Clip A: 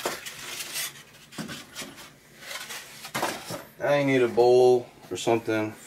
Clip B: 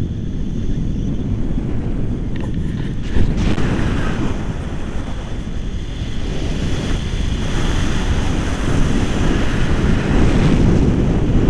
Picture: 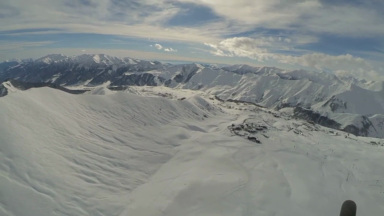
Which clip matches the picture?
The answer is B